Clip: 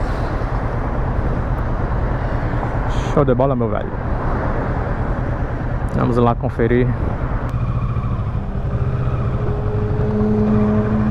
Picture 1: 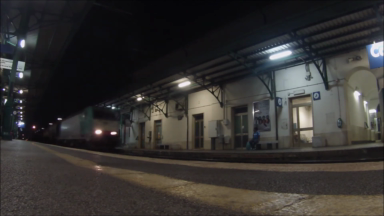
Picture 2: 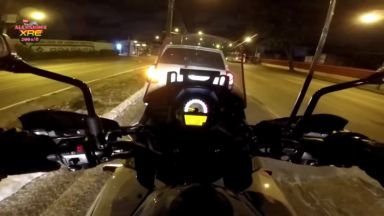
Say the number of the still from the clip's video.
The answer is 2